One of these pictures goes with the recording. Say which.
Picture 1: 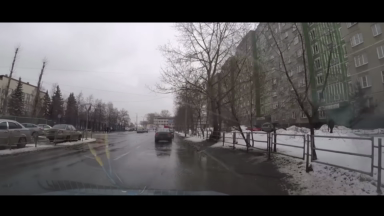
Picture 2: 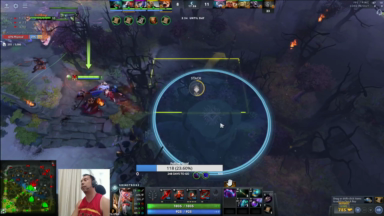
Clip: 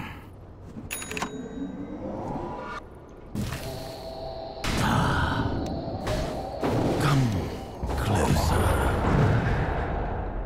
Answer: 2